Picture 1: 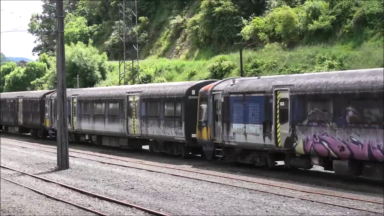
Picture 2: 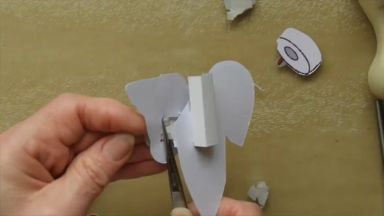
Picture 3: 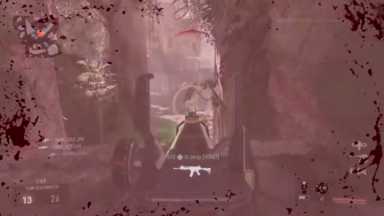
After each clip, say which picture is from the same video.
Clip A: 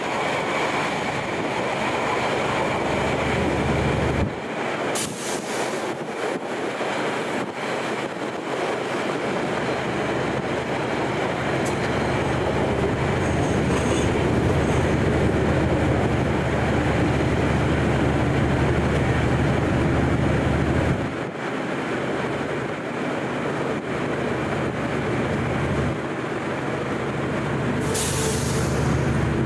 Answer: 1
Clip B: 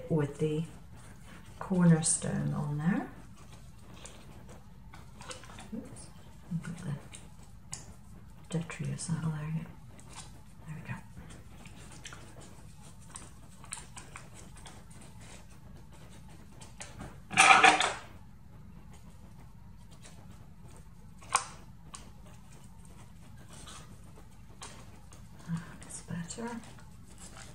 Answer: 2